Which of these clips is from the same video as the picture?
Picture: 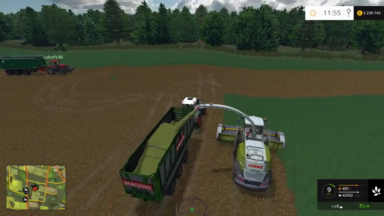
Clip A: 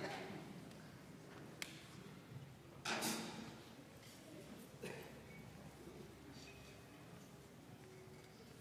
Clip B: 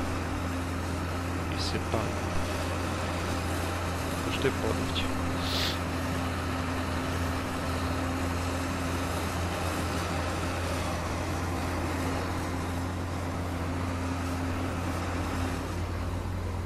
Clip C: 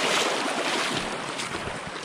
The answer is B